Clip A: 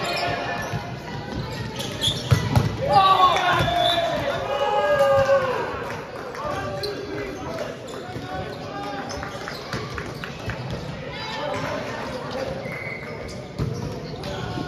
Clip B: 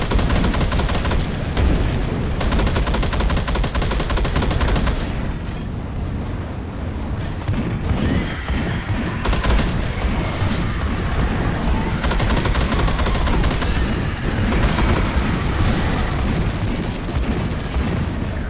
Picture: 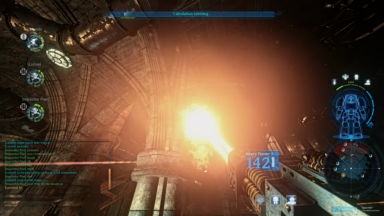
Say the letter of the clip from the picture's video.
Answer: B